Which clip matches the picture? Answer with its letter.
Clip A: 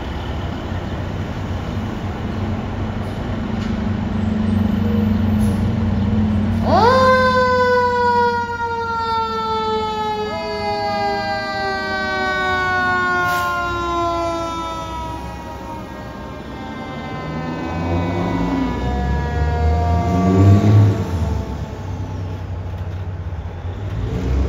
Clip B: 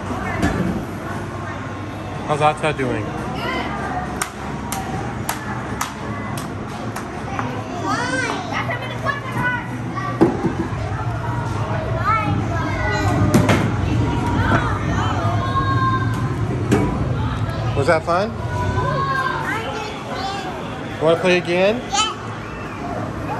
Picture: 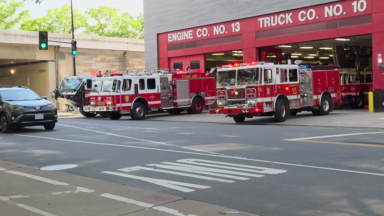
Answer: A